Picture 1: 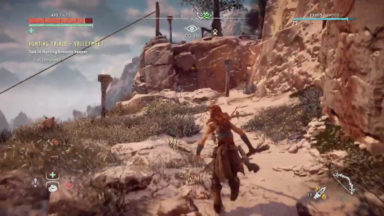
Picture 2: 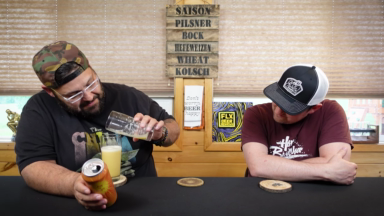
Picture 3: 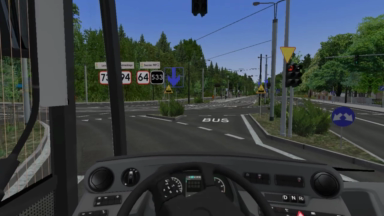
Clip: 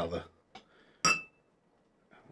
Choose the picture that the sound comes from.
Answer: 2